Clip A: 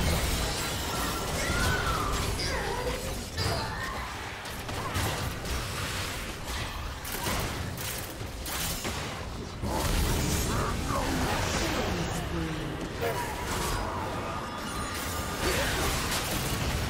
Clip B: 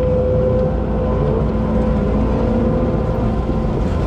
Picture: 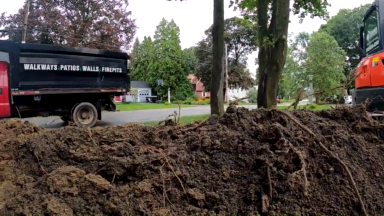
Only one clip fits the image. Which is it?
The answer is B